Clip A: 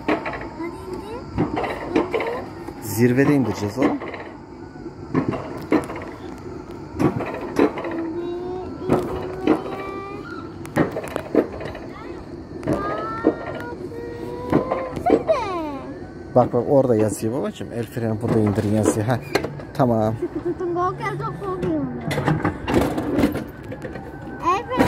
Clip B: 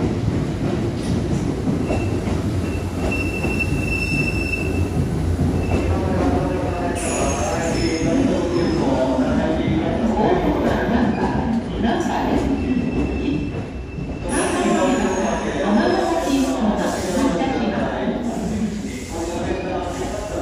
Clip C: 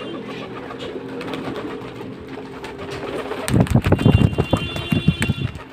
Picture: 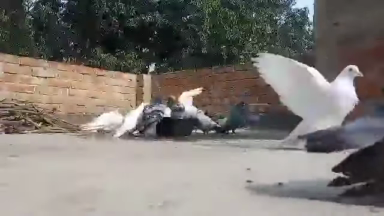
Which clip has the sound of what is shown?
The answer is C